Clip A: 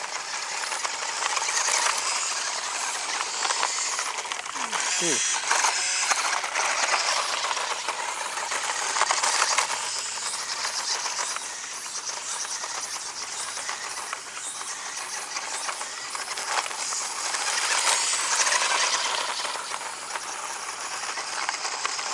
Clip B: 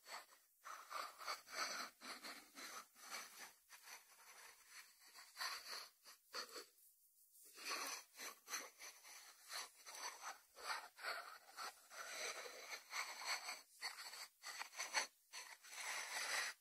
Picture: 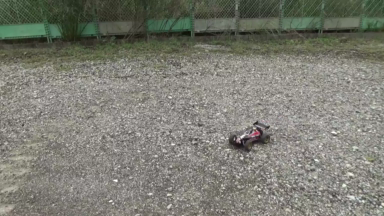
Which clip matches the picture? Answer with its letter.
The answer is A